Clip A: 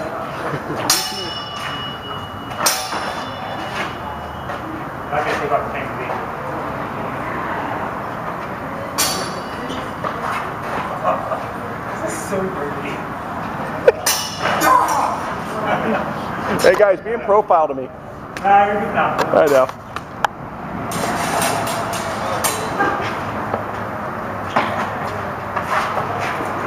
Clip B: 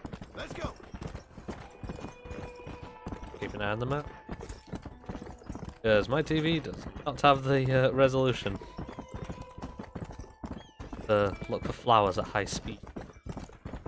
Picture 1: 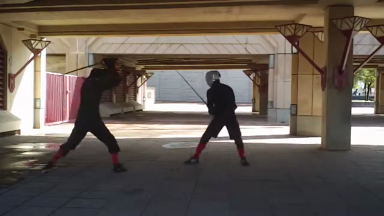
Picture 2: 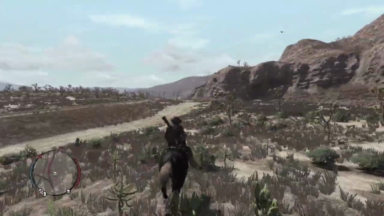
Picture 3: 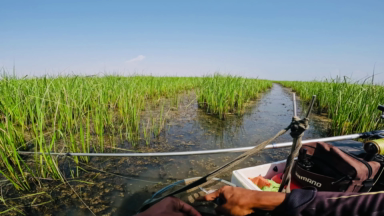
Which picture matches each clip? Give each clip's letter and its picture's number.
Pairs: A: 1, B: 2